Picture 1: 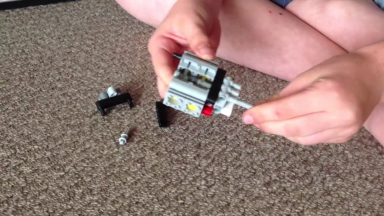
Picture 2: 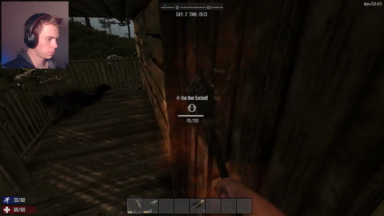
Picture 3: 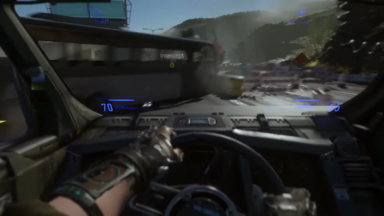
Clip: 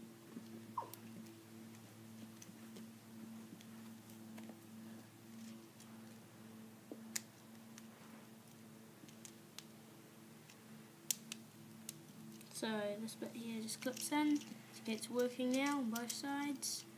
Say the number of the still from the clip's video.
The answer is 1